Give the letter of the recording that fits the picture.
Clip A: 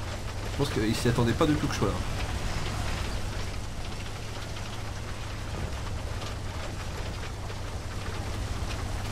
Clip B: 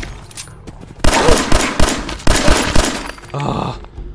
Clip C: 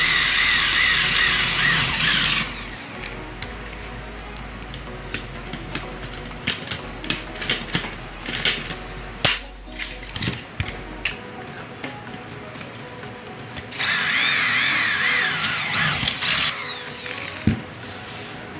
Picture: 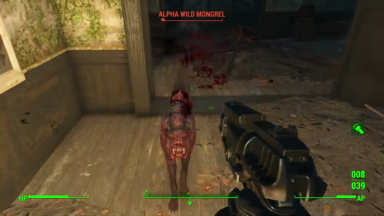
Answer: B